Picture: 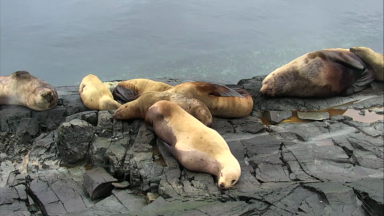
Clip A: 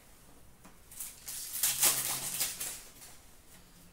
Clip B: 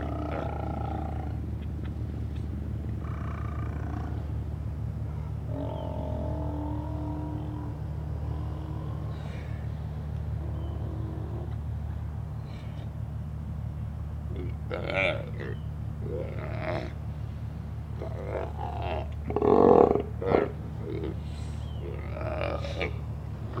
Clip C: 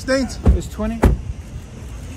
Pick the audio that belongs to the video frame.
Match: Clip B